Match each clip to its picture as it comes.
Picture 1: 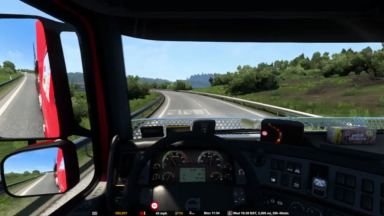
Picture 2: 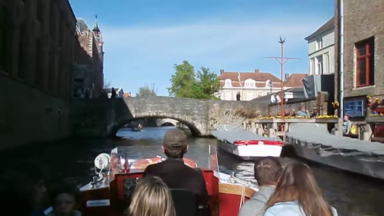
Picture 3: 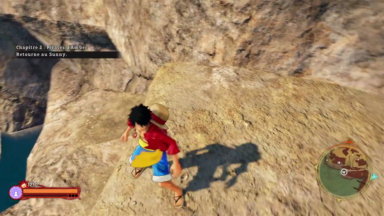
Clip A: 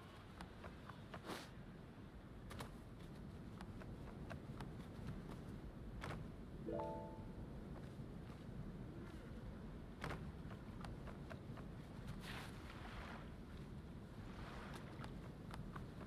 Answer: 3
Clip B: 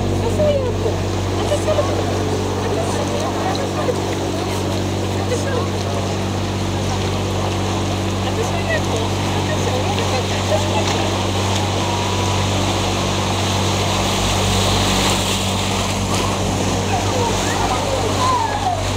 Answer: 2